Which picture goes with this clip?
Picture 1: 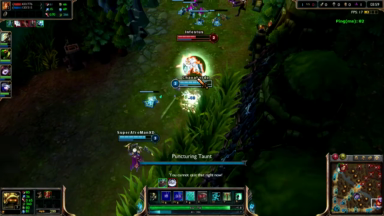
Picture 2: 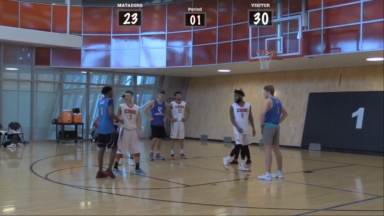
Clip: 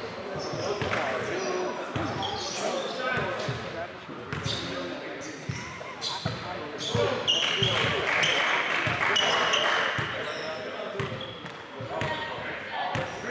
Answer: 2